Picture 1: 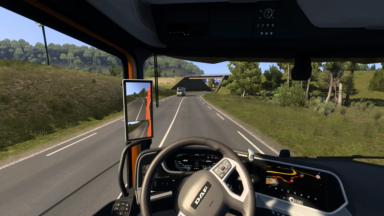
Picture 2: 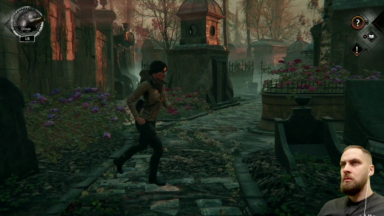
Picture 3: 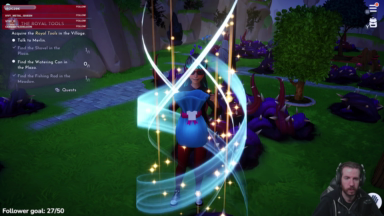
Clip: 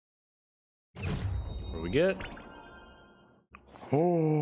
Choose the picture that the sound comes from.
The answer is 3